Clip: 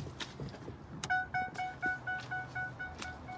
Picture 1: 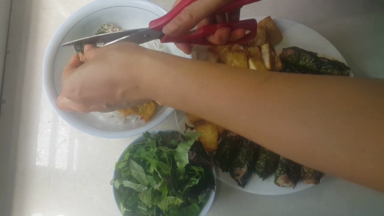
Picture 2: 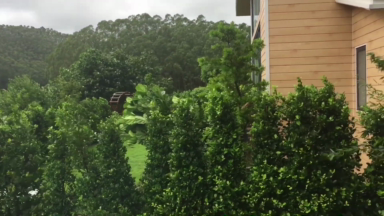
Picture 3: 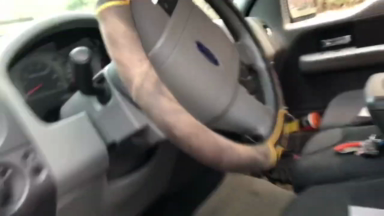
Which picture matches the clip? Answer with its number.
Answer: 3